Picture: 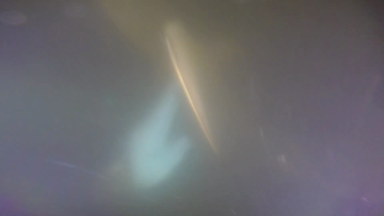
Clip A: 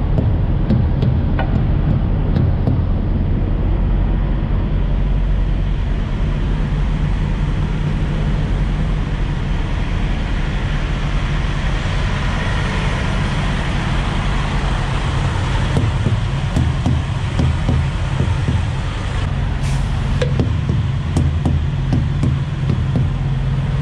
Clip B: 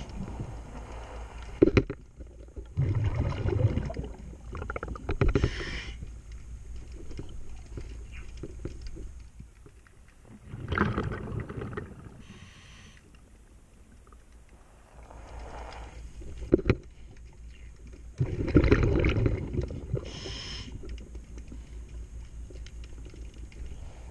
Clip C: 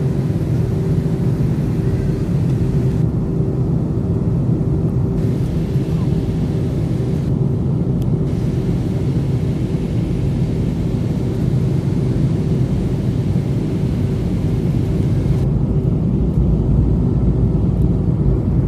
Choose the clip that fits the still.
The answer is B